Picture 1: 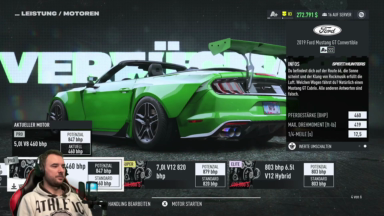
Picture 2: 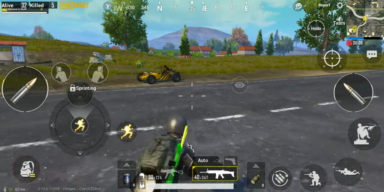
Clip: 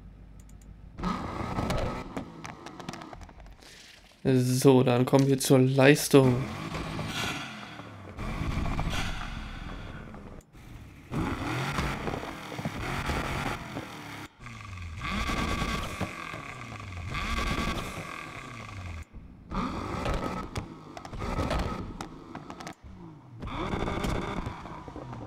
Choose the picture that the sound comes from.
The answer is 1